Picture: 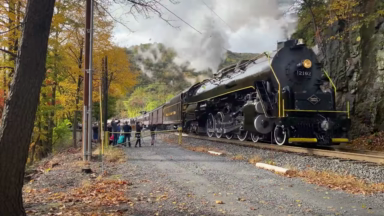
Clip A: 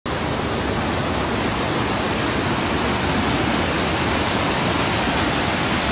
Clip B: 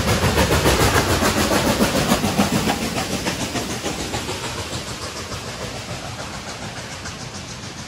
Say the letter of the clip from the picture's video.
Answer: B